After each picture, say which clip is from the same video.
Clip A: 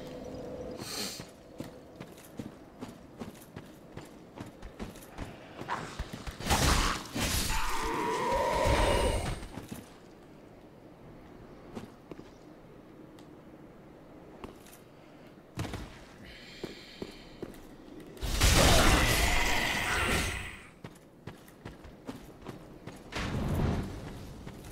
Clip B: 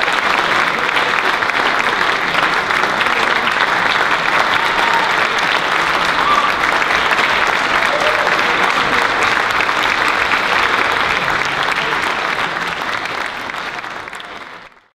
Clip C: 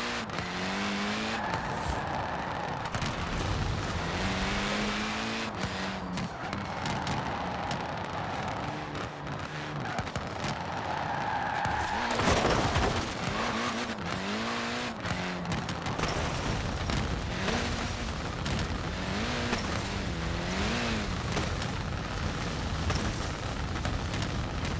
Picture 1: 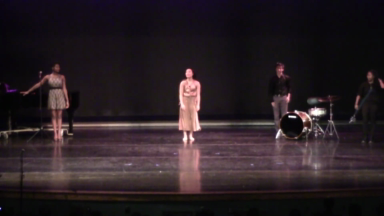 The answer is B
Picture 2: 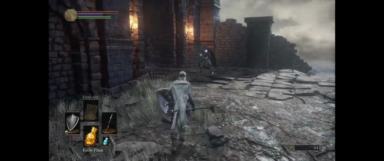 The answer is A